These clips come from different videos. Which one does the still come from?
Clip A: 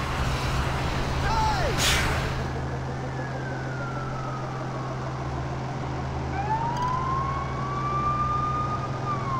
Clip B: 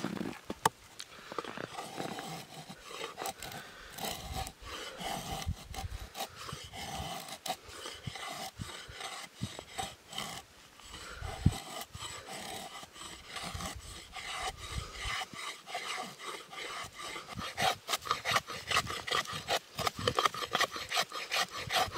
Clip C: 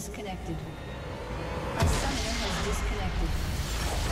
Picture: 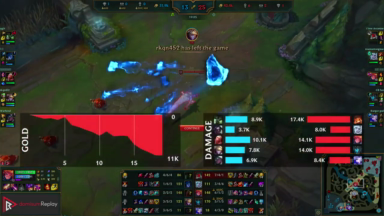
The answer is C